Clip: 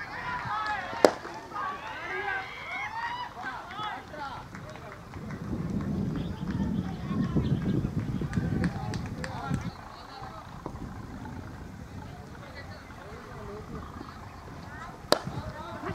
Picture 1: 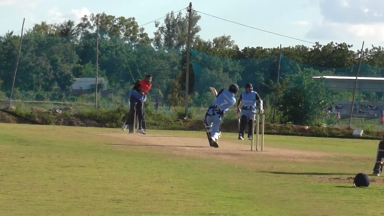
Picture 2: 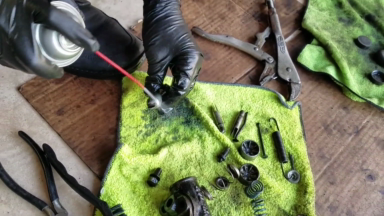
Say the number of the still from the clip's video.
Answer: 1